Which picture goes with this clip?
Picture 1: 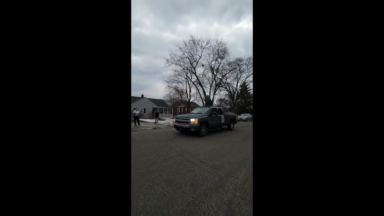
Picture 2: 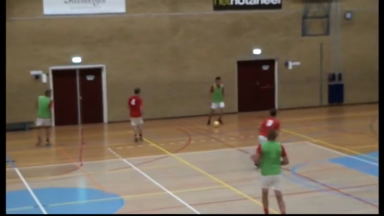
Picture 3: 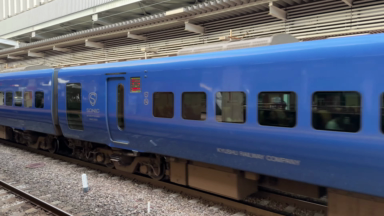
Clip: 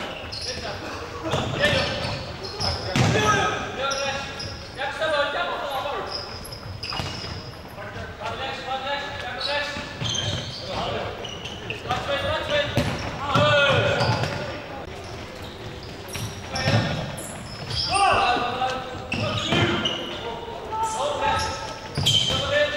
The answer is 2